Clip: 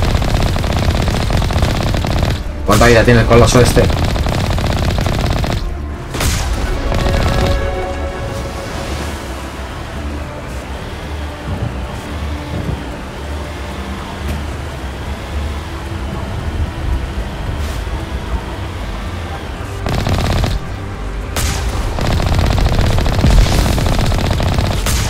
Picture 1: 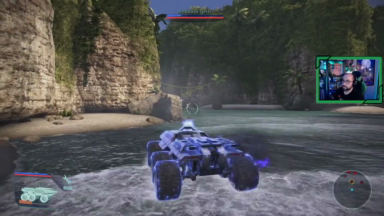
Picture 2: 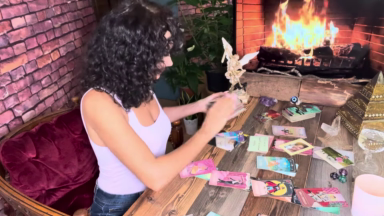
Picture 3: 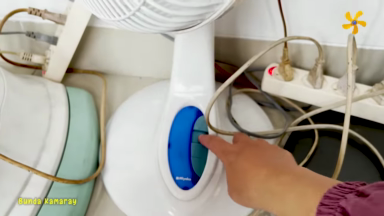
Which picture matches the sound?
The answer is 1